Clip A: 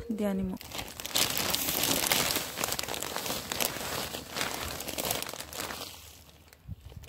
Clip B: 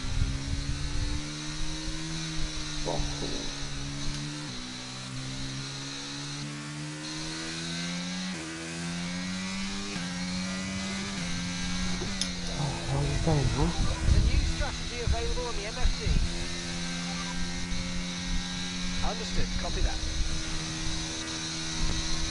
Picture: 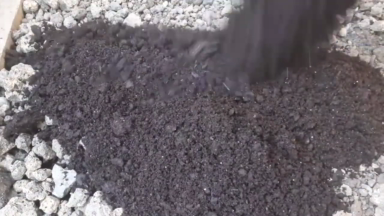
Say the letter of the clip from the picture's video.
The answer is A